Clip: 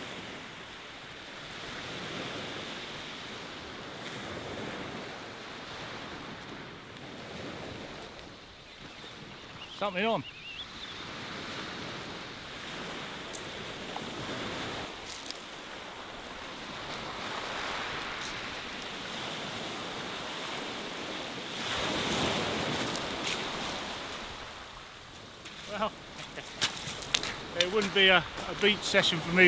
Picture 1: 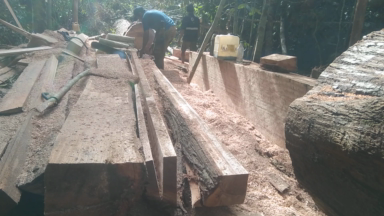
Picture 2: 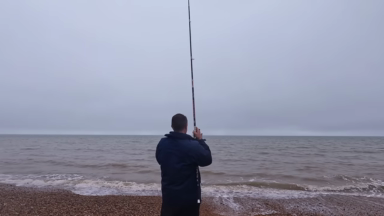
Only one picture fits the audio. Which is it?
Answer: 2